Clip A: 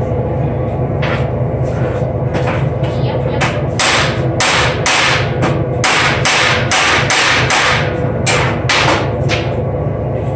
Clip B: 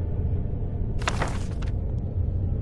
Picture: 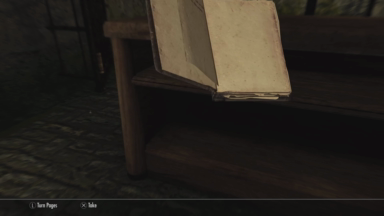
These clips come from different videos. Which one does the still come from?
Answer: B